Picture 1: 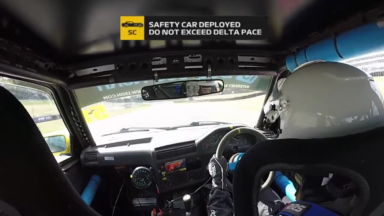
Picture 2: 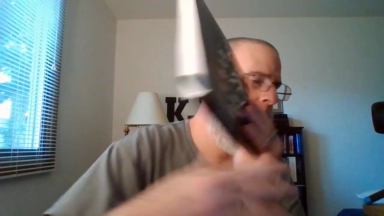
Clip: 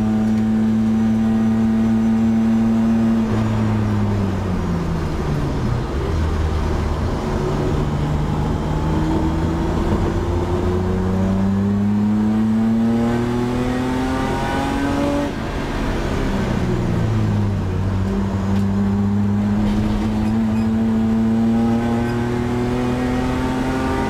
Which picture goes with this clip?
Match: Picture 1